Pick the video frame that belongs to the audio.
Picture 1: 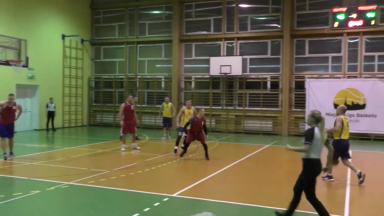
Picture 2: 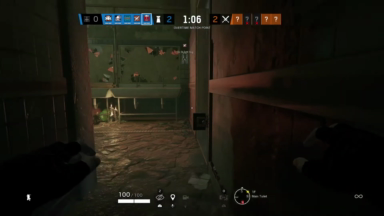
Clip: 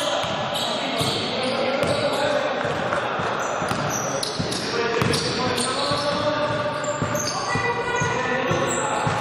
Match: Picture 1